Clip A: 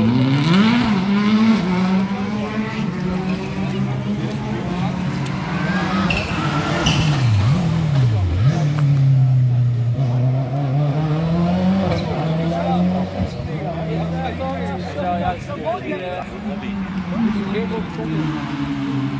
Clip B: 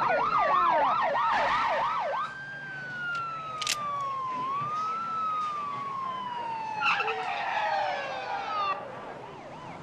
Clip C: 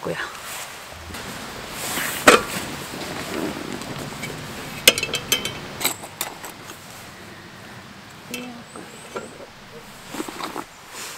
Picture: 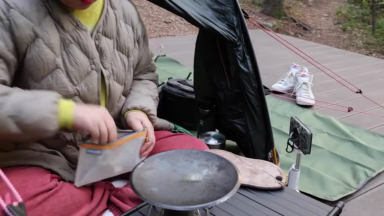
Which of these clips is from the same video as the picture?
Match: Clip C